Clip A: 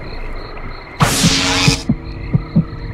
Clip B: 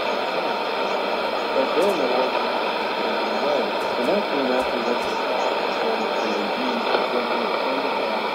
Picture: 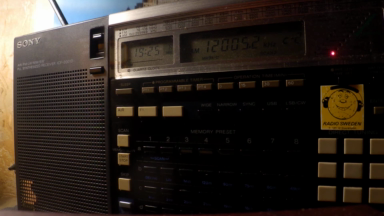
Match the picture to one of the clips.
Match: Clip B